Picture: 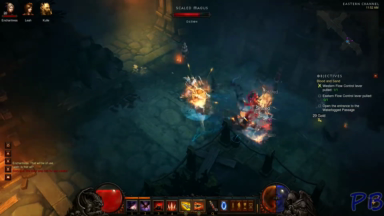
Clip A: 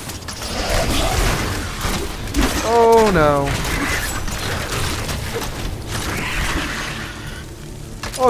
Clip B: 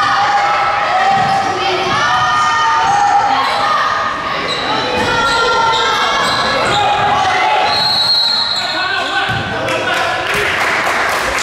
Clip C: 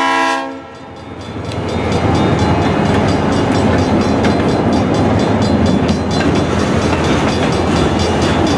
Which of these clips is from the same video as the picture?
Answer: A